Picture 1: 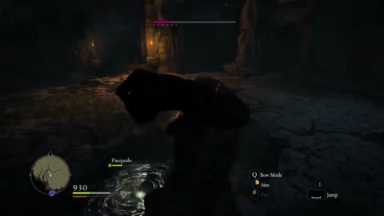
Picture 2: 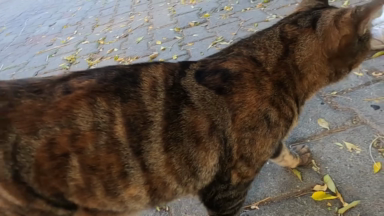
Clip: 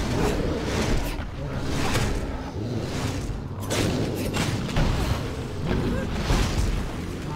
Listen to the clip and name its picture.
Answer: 1